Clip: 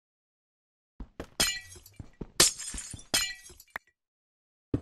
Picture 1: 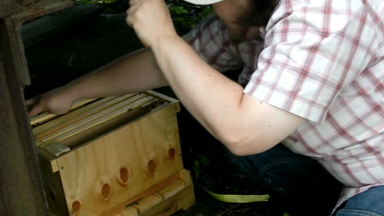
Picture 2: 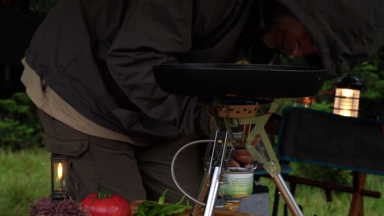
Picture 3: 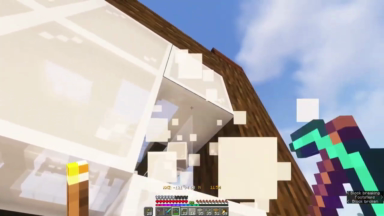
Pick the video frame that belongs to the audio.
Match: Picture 3